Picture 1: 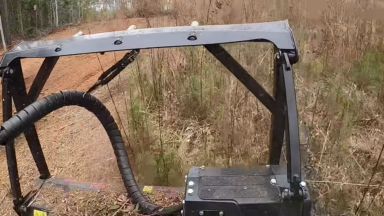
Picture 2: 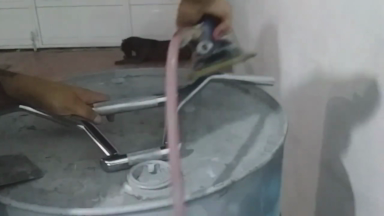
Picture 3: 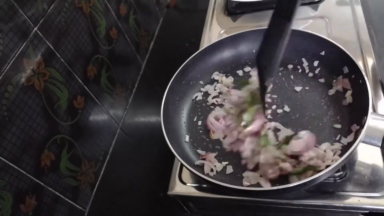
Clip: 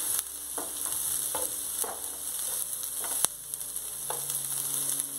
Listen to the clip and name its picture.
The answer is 3